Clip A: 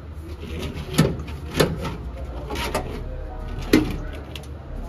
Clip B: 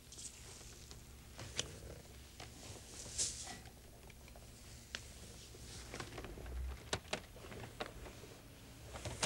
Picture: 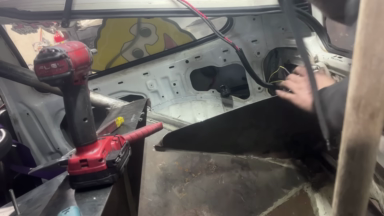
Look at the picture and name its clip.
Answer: A